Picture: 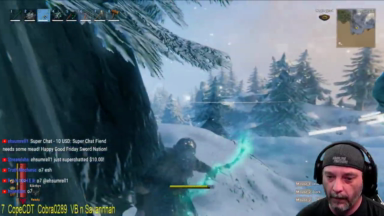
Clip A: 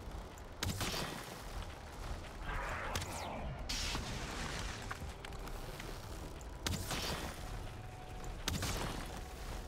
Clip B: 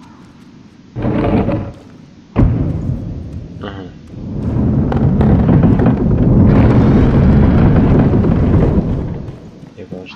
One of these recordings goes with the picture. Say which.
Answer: A